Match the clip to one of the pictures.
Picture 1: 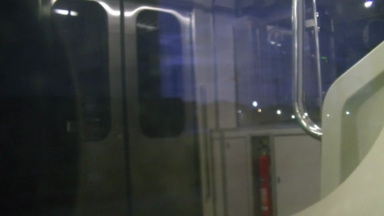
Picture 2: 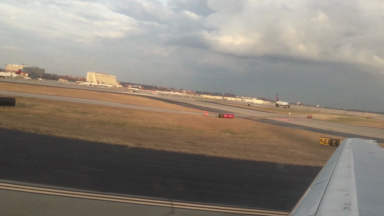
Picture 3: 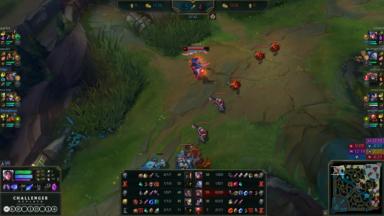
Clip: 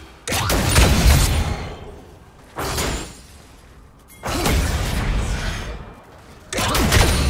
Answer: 3